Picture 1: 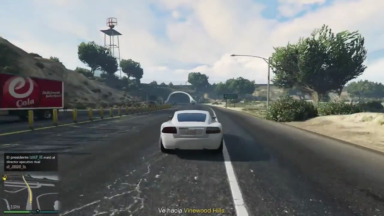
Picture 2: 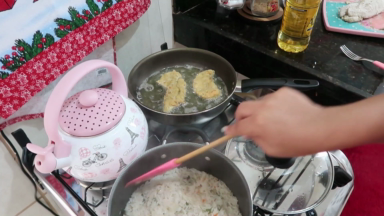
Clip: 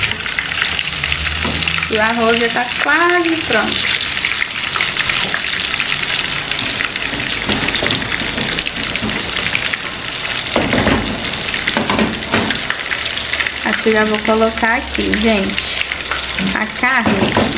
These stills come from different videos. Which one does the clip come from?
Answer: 2